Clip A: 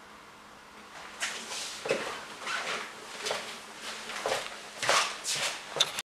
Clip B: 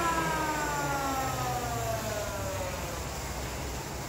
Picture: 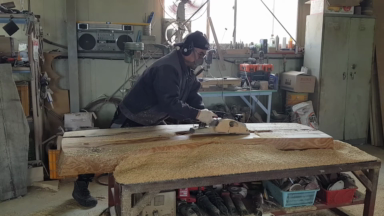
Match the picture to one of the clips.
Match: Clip B